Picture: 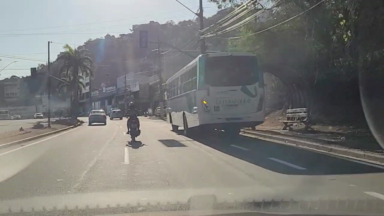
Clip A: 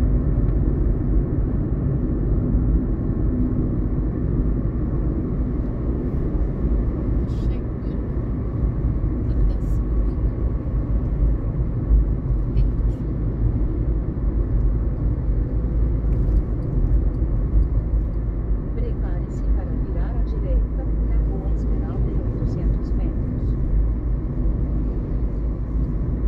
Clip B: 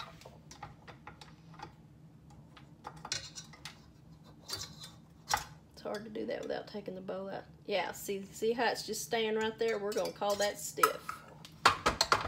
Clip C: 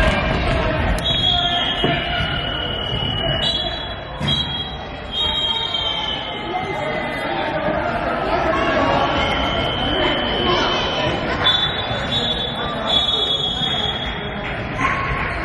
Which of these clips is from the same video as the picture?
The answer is A